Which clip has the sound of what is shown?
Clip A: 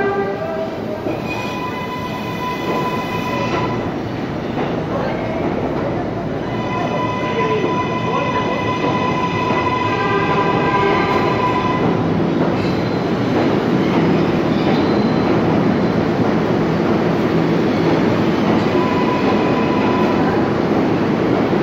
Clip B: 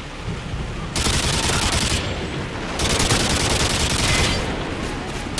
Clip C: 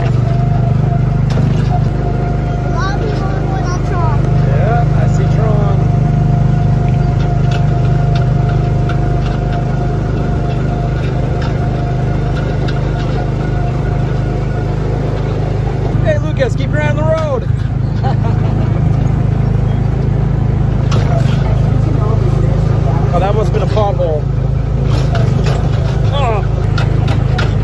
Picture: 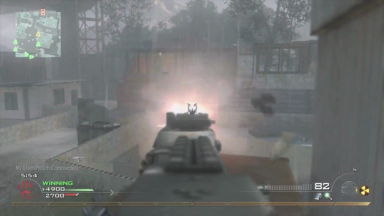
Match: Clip B